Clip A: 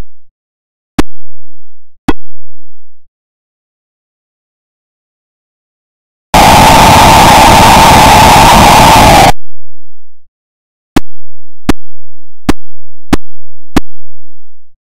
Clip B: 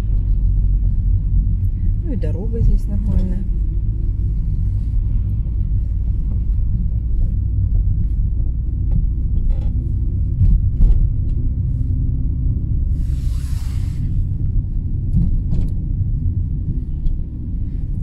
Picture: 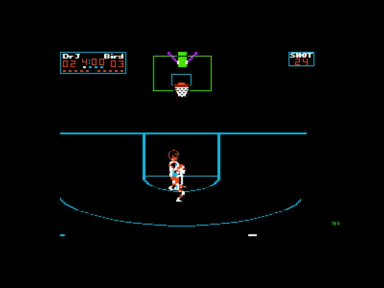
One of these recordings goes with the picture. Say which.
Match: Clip A